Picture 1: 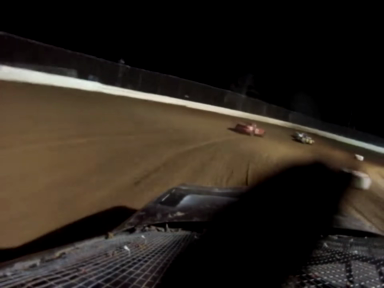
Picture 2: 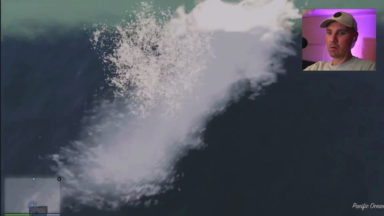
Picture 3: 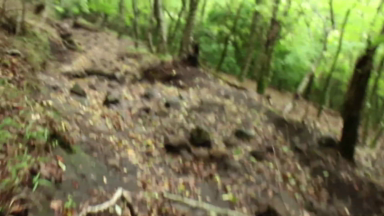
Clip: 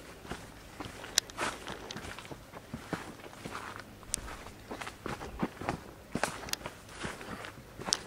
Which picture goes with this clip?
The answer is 3